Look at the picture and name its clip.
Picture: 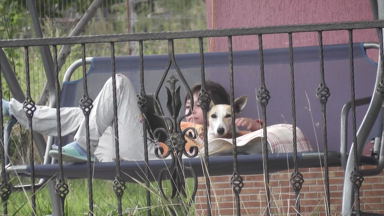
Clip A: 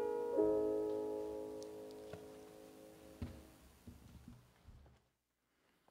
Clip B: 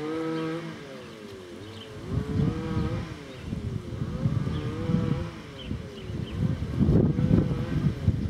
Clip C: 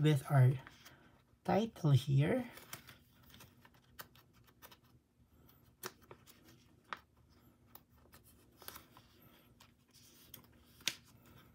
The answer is B